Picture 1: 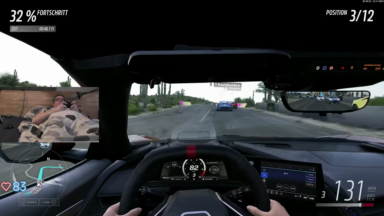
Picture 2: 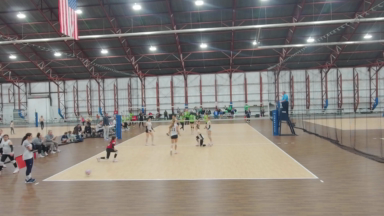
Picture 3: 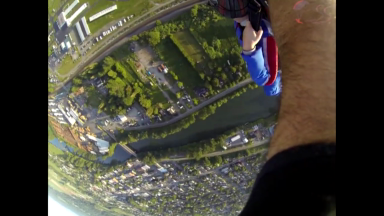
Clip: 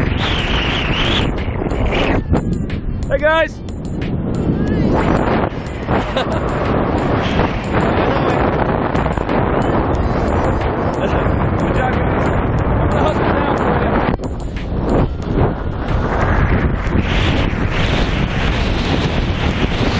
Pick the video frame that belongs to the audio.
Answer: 3